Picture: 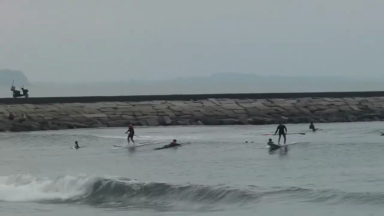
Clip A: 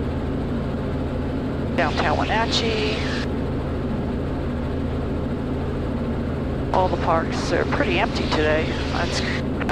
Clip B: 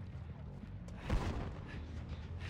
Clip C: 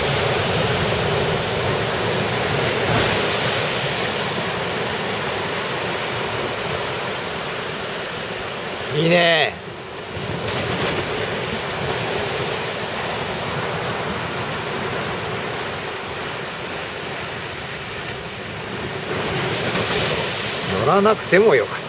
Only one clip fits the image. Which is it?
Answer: C